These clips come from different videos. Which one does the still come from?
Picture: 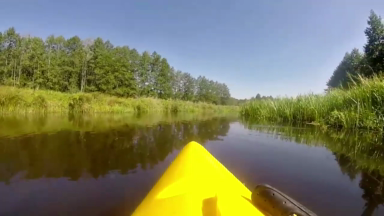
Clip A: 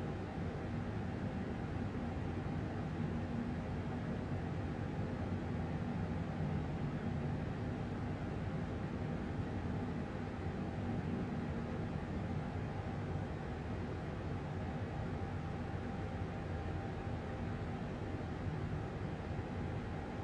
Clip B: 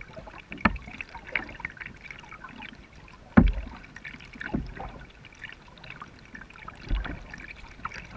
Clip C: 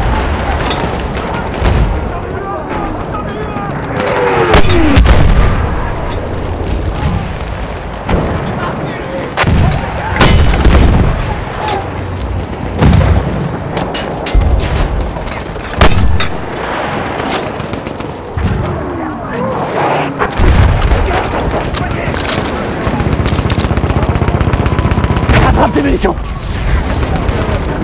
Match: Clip B